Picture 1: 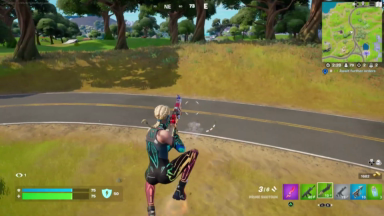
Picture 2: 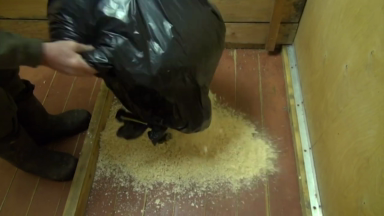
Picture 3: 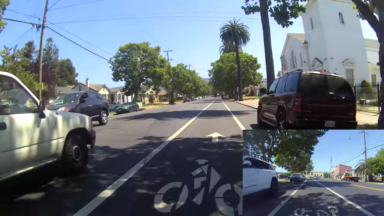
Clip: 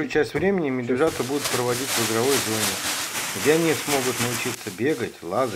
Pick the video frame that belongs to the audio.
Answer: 2